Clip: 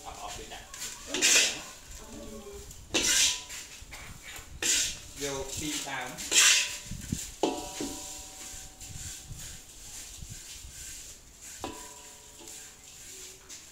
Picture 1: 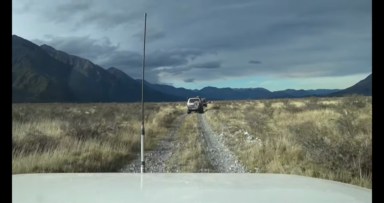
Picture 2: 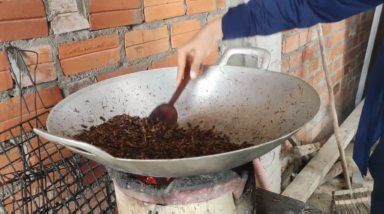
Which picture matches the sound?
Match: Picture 2